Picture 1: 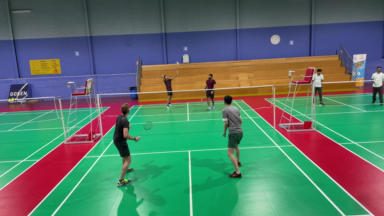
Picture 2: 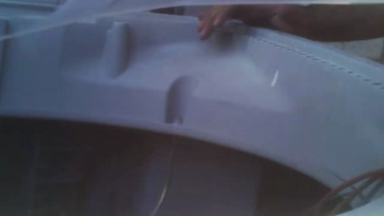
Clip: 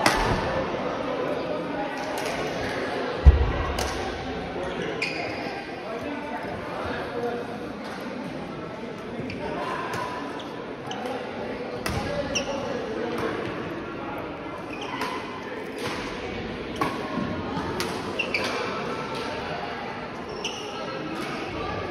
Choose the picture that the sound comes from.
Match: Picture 1